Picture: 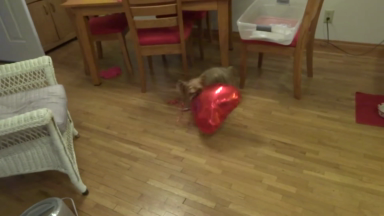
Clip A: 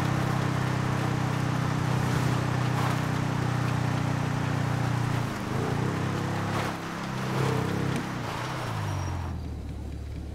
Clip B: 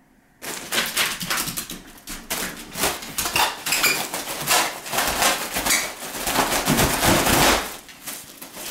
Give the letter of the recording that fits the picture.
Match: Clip B